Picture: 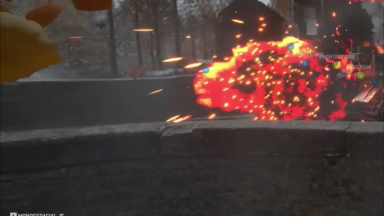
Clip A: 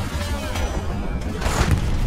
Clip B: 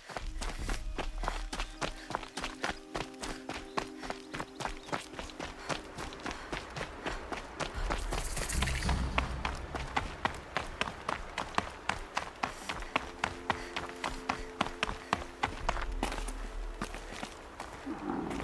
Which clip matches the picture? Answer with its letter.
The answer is A